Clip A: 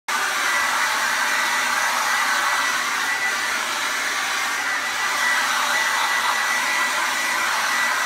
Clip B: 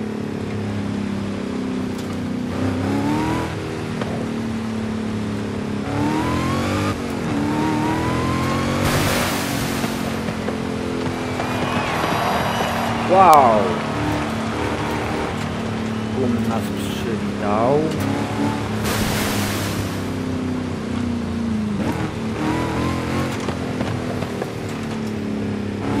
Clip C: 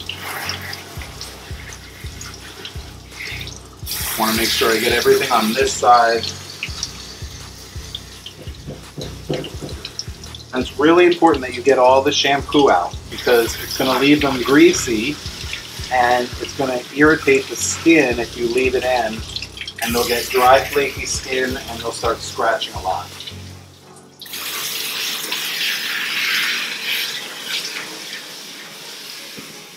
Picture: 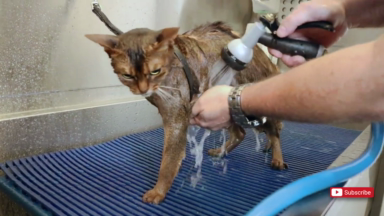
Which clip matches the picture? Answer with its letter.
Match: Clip C